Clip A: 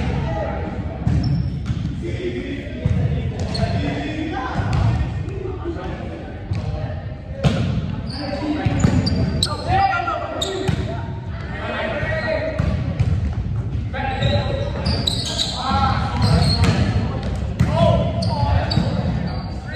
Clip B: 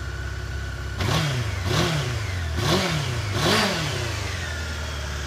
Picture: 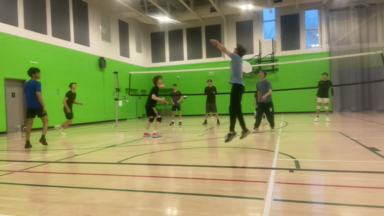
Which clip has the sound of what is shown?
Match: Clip A